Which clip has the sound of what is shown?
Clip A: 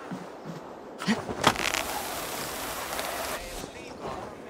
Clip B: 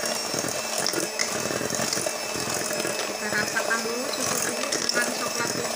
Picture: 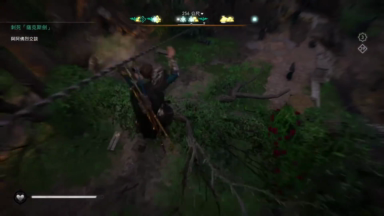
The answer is A